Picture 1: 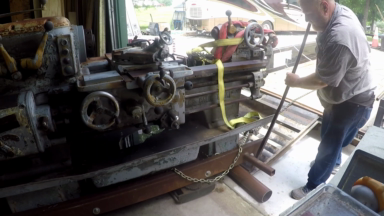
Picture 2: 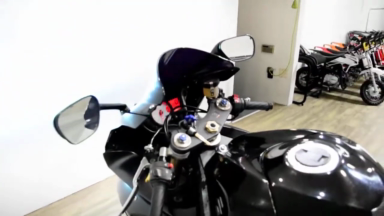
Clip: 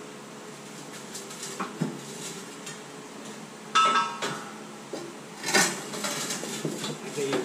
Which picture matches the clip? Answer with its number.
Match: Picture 1